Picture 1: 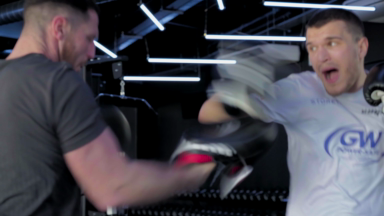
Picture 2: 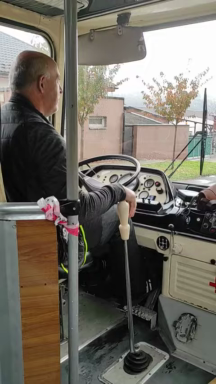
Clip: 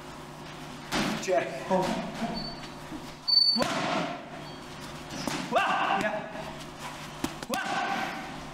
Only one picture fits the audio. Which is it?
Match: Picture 1